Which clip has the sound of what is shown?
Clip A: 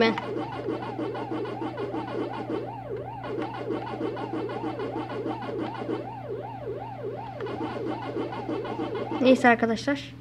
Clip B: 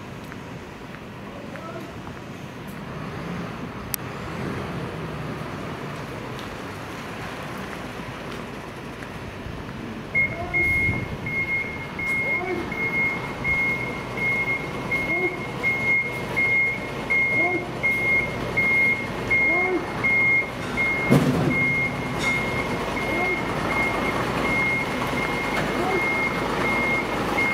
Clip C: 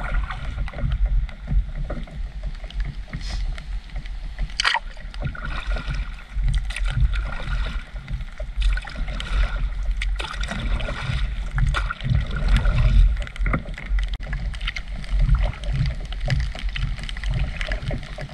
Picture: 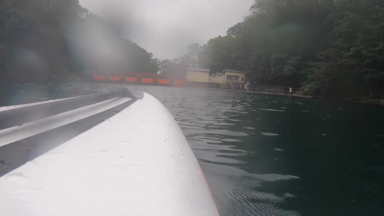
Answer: C